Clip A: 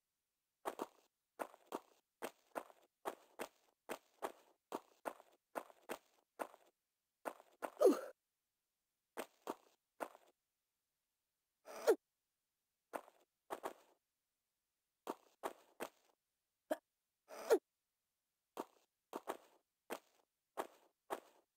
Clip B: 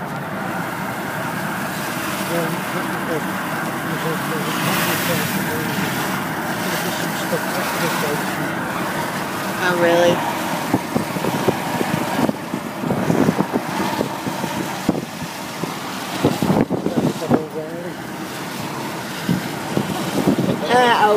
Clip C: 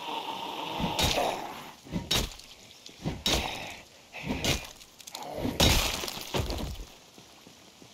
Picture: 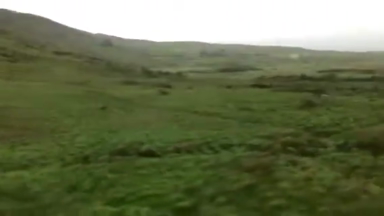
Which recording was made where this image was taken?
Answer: B